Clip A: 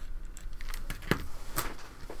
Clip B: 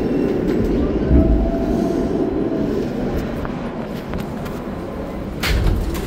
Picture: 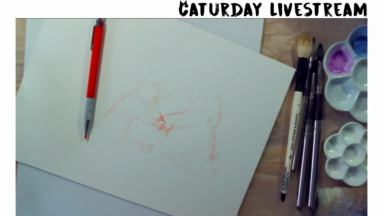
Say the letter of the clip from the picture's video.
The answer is A